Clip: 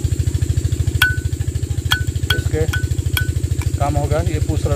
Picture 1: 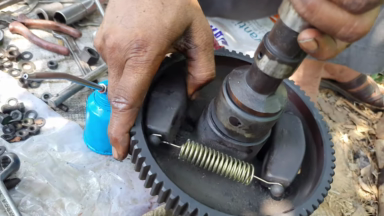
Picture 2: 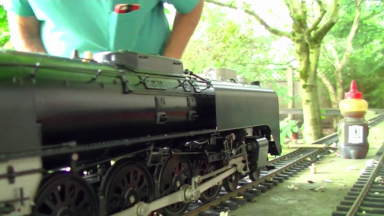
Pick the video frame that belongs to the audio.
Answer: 1